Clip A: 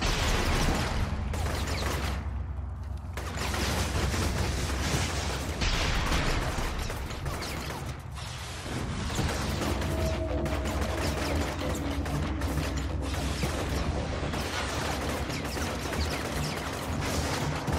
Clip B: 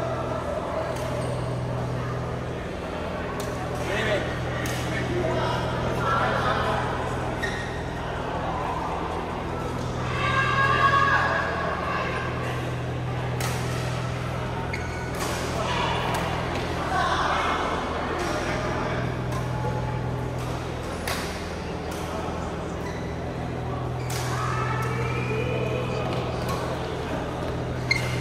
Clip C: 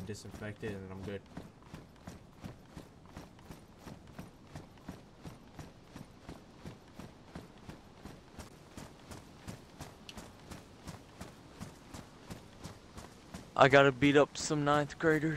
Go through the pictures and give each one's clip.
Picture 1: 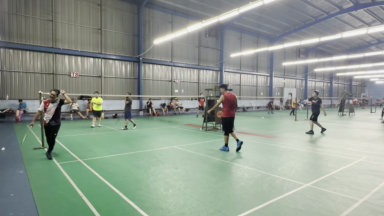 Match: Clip B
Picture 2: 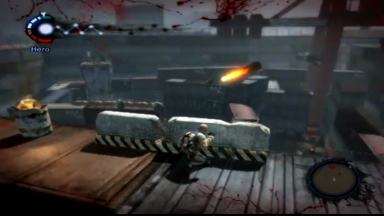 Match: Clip A